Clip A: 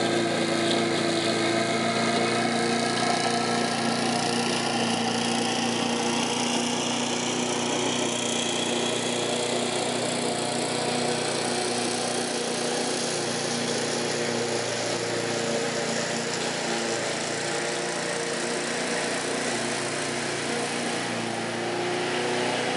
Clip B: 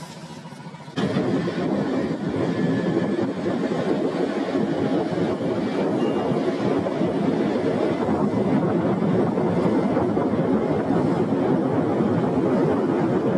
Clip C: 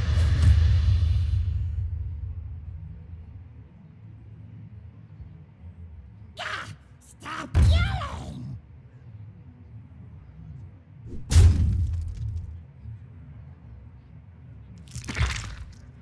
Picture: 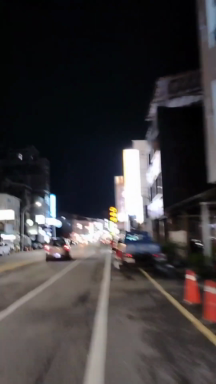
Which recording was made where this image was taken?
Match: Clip B